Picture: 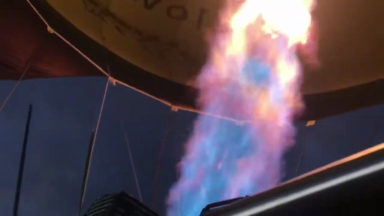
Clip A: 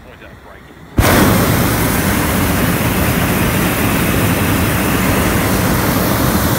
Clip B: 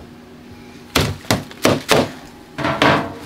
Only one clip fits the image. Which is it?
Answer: A